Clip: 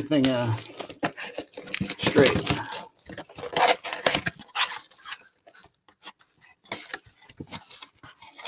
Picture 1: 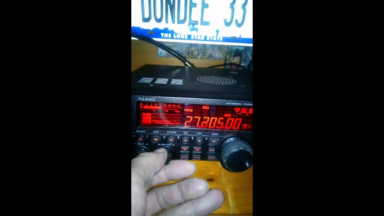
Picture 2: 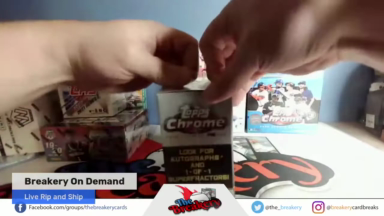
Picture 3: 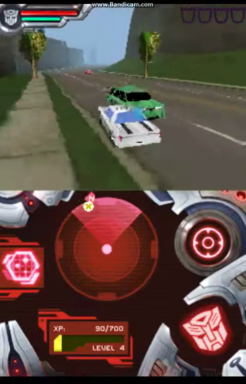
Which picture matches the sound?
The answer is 2